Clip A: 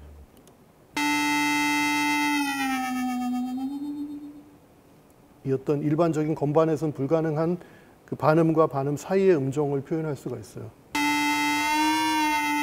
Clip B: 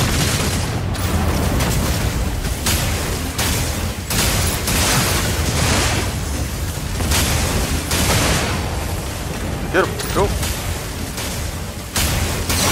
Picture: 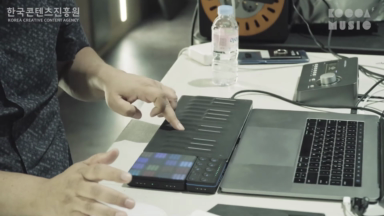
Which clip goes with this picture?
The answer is A